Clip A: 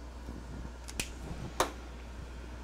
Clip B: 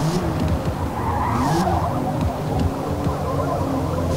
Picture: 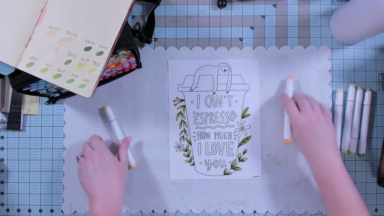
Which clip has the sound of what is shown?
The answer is A